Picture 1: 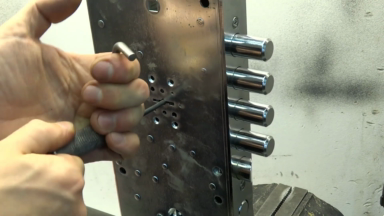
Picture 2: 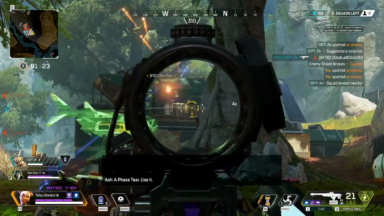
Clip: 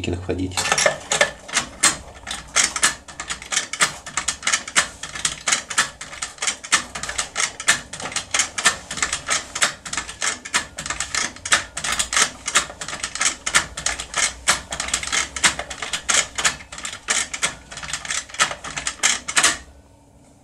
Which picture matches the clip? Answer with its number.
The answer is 1